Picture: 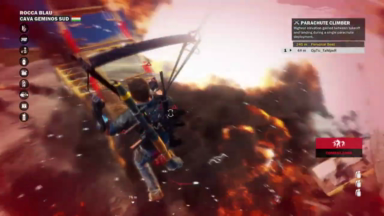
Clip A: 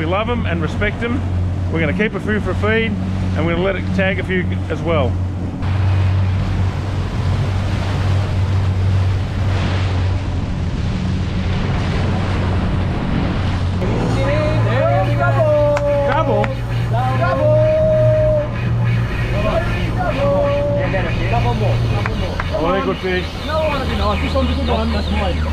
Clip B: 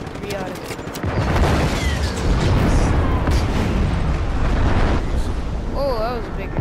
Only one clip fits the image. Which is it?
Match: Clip B